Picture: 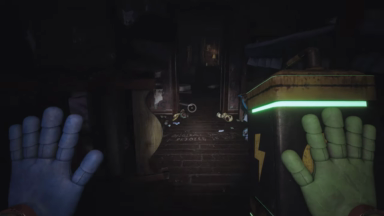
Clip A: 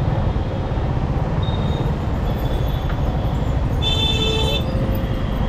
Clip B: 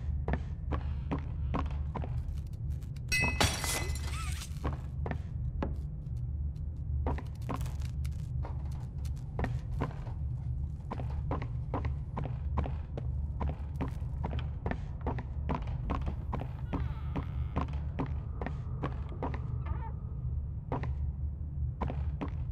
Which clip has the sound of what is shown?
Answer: B